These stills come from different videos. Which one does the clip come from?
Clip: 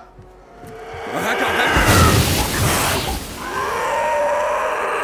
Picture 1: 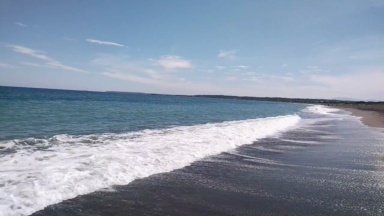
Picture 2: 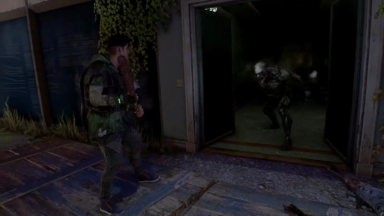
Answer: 2